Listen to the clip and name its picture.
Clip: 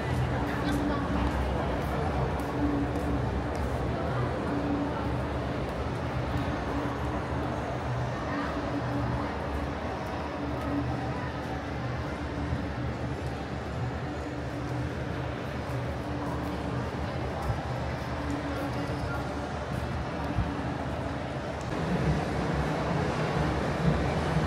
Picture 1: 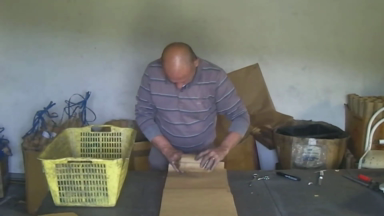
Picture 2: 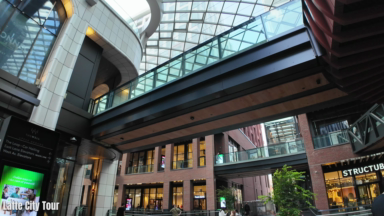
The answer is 2